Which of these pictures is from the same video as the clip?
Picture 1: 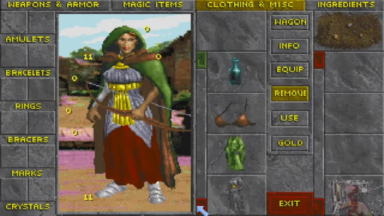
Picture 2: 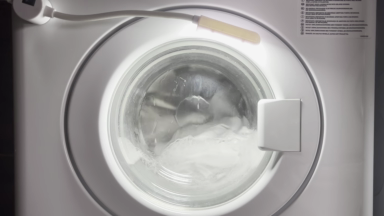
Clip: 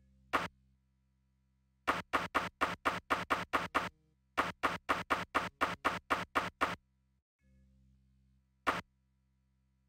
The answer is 1